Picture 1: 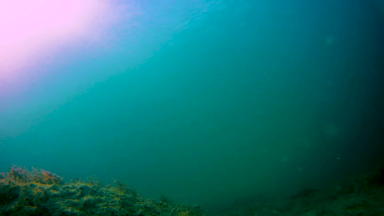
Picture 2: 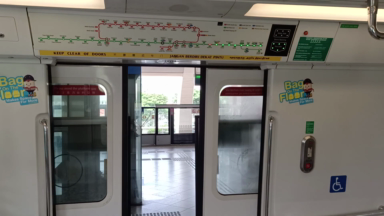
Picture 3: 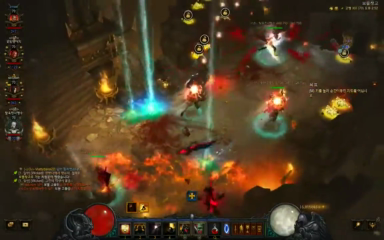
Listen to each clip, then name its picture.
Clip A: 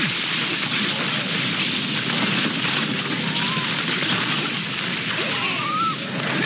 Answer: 3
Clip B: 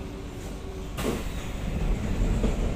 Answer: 2